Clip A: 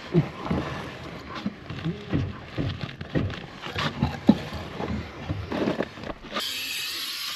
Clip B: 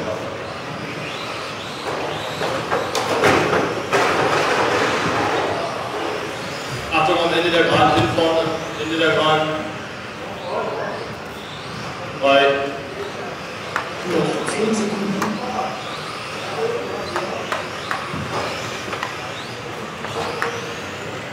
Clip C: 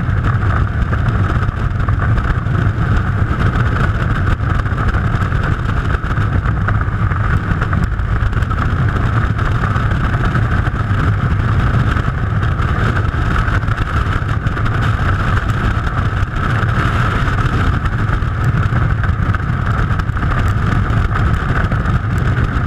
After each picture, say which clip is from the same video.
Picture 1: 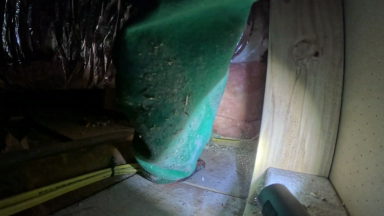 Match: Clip A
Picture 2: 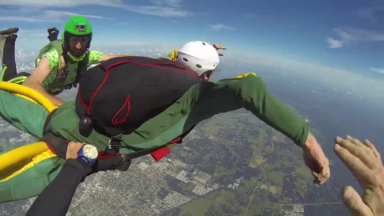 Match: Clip C